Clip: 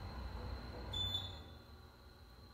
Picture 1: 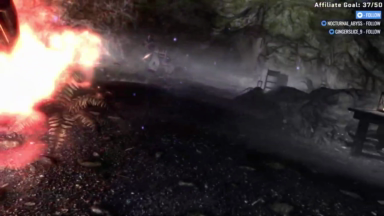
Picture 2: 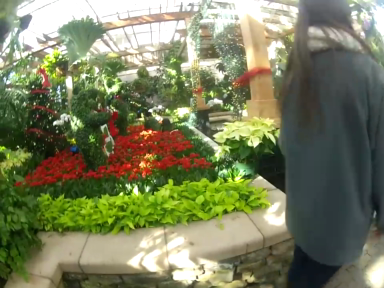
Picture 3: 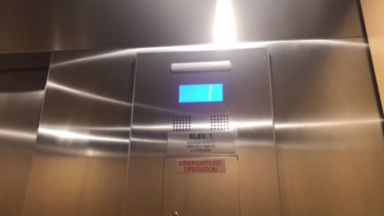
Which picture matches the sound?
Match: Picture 3